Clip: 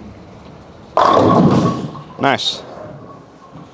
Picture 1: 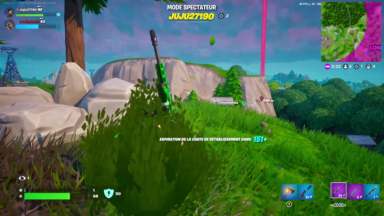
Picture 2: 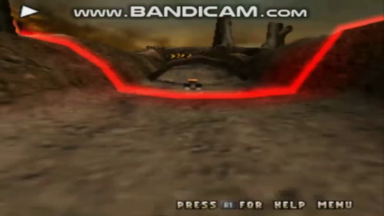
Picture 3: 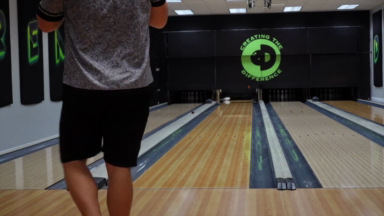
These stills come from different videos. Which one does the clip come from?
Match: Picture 3